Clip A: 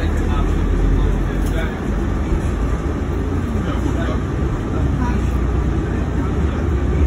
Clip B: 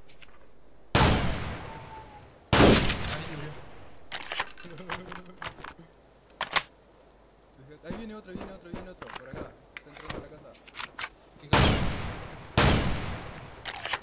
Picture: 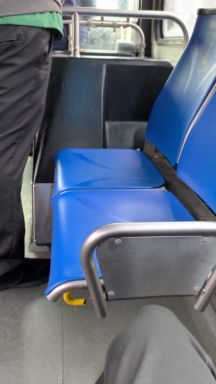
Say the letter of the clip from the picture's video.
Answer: A